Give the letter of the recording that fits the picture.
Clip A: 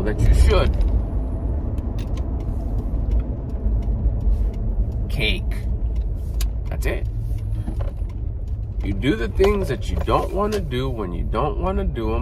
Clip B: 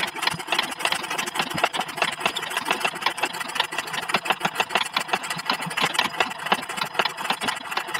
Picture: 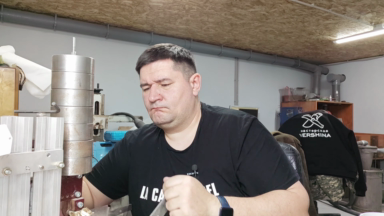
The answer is B